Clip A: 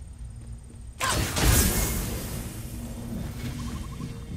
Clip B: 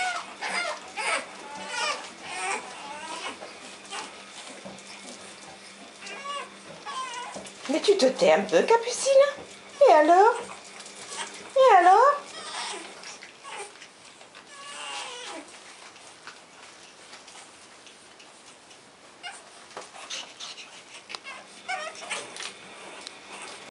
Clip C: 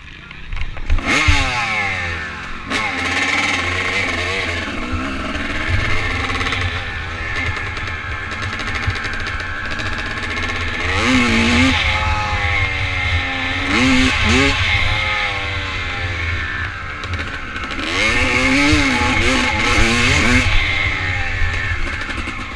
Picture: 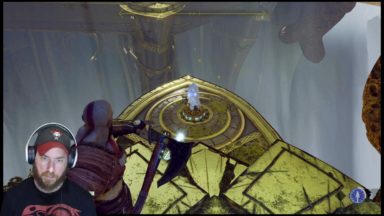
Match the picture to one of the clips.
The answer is A